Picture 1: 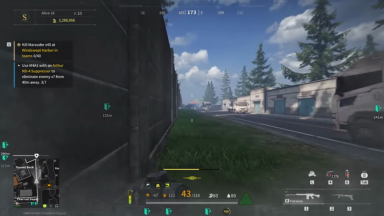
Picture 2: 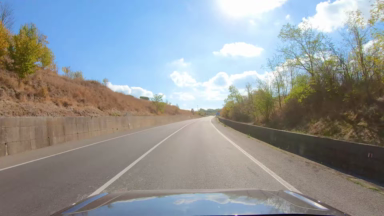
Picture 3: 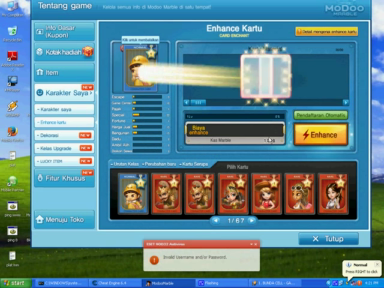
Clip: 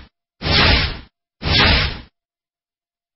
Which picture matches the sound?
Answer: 3